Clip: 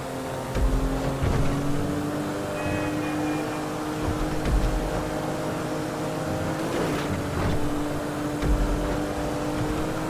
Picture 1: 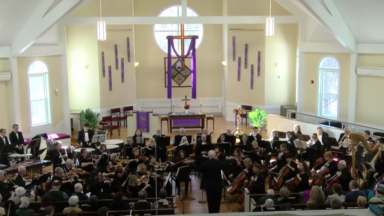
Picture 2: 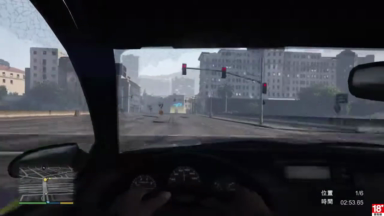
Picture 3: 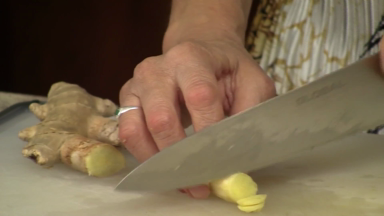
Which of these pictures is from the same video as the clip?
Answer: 2